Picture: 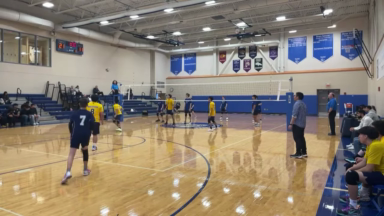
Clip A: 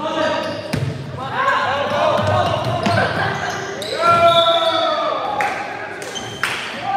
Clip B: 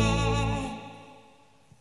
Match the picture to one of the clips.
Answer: A